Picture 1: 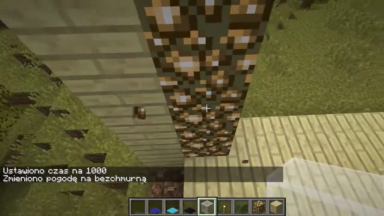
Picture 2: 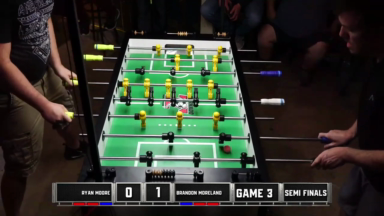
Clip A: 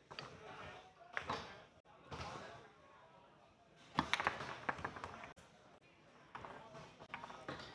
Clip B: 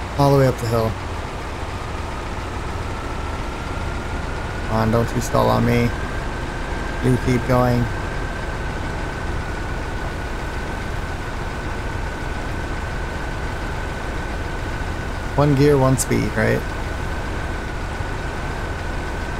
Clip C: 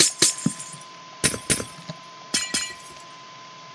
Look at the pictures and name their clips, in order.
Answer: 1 C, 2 A